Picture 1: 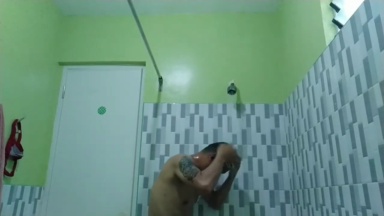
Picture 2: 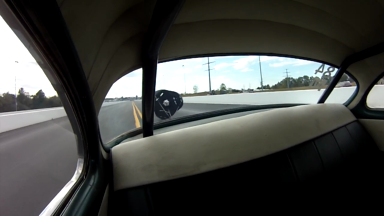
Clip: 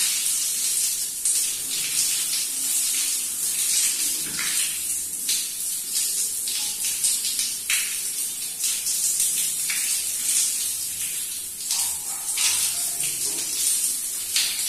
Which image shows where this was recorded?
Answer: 1